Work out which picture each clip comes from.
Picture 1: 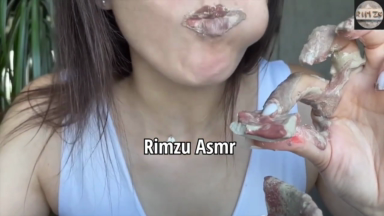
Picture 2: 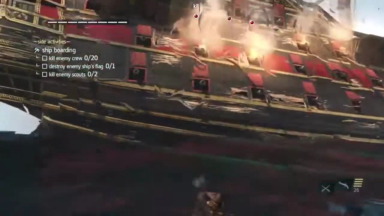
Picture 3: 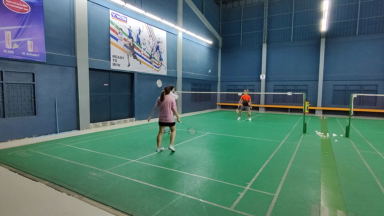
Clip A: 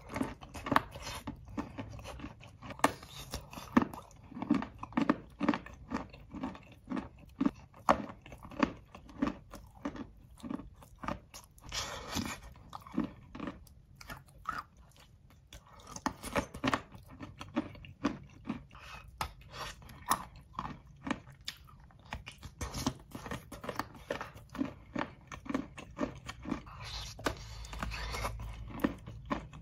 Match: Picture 1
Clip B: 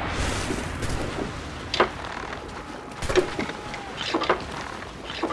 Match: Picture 2